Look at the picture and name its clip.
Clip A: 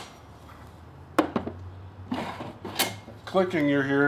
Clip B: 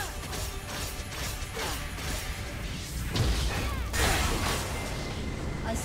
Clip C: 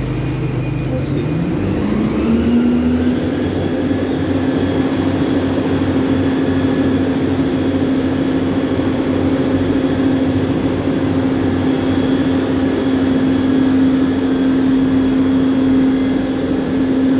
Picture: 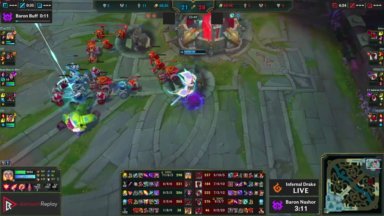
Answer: B